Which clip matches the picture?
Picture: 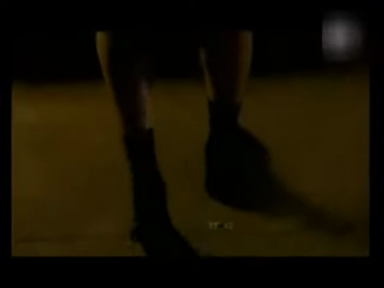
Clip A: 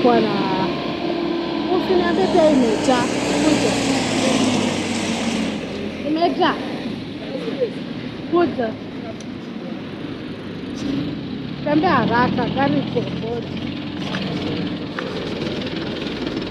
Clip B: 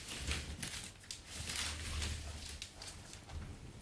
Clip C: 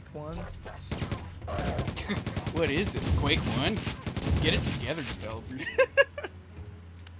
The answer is B